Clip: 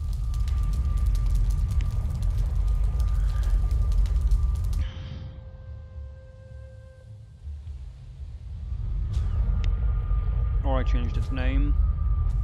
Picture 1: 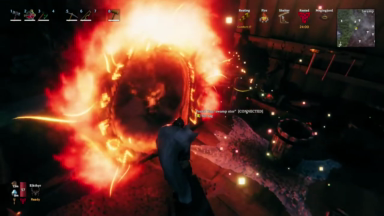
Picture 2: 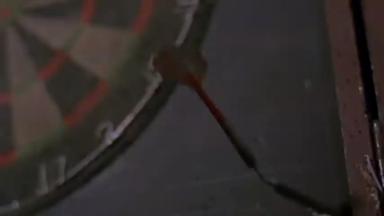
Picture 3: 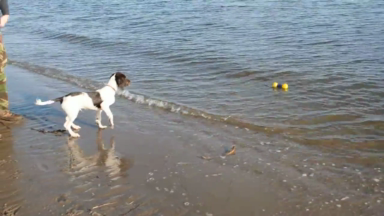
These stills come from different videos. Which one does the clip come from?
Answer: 1